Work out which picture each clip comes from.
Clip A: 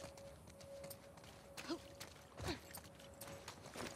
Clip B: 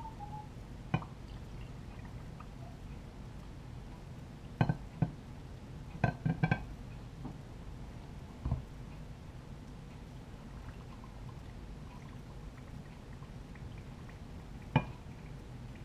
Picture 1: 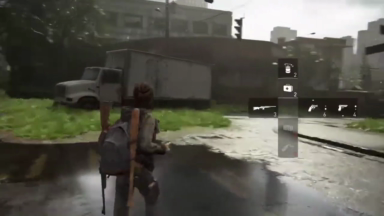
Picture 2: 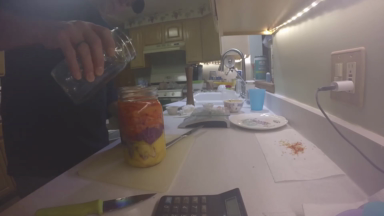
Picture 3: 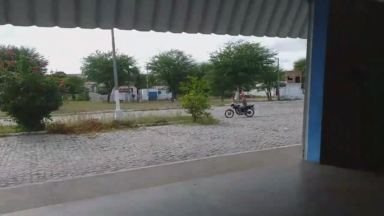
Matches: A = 1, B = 2